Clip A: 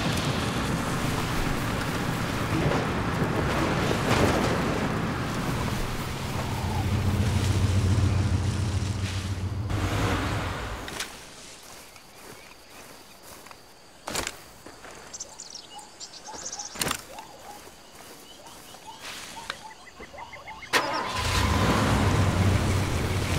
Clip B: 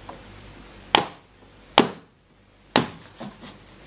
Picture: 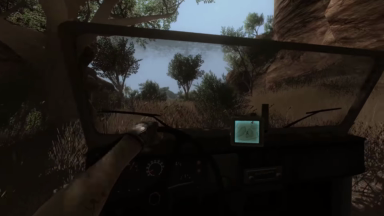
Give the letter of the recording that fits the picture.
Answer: A